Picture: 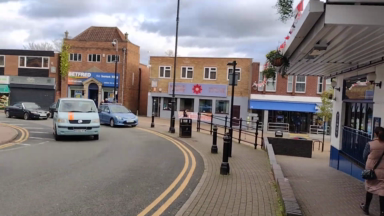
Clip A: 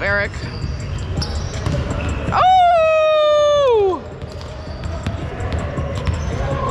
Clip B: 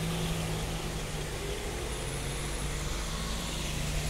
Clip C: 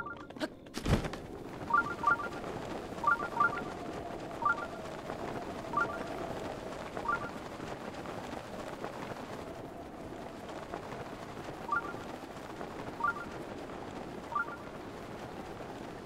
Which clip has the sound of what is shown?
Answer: B